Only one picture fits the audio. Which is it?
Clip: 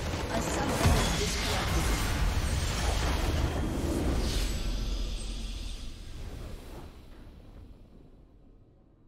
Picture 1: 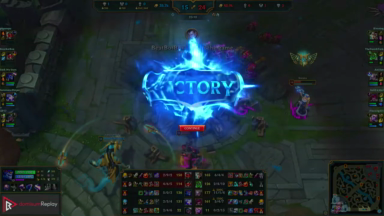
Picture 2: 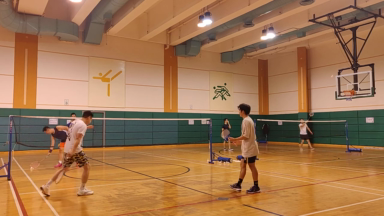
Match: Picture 1